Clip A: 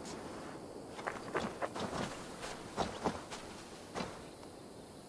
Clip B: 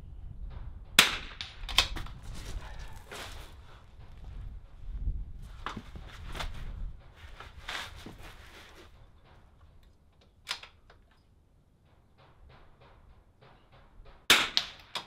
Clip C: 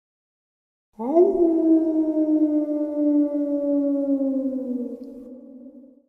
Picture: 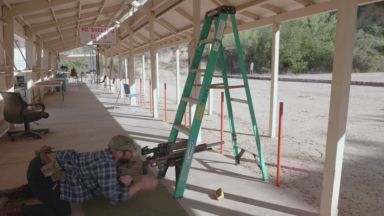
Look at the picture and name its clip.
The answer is B